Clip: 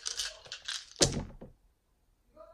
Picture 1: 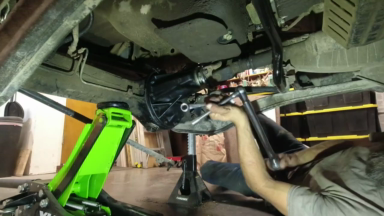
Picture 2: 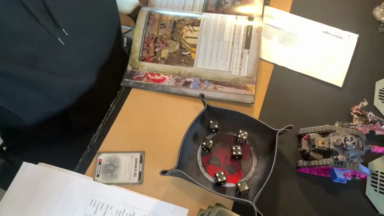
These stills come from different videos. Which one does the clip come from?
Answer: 2